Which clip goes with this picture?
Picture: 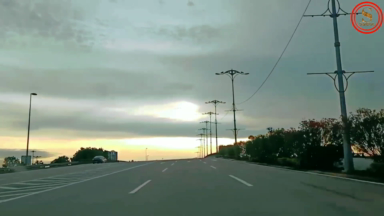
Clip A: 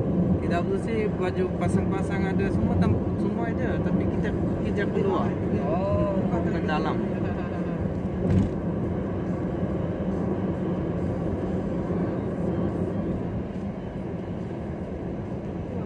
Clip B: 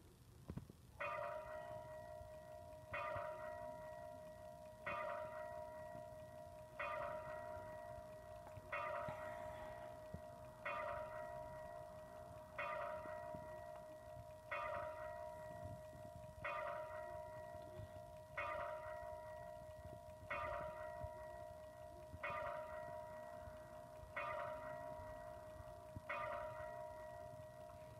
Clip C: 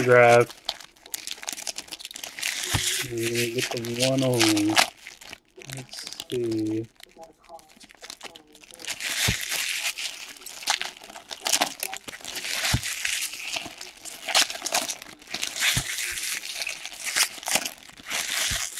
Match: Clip A